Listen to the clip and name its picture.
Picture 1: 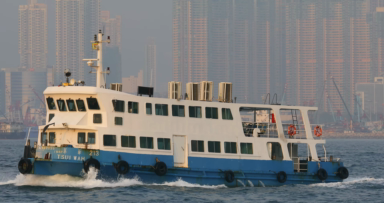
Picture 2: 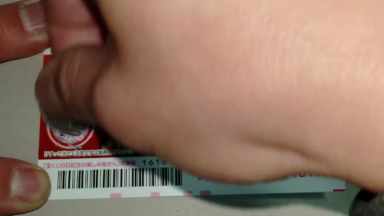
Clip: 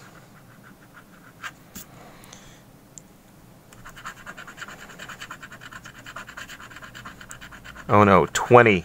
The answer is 2